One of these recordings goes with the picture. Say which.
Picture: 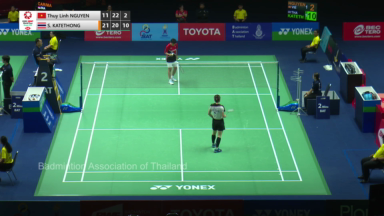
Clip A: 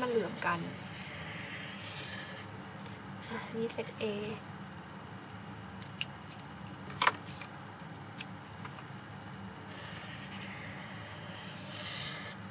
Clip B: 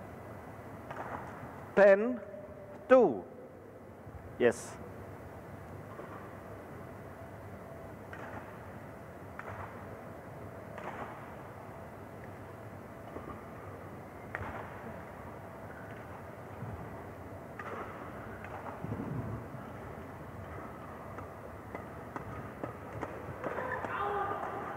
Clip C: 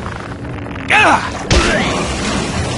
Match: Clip B